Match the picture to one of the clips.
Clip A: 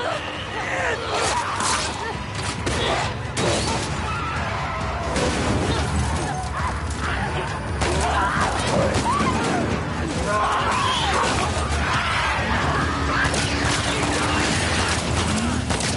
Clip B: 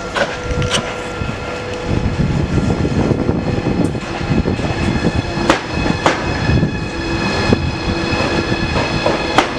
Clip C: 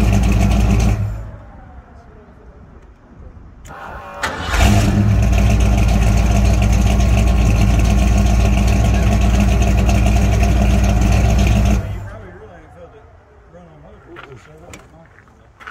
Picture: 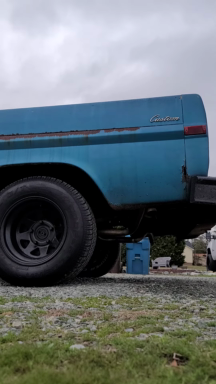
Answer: C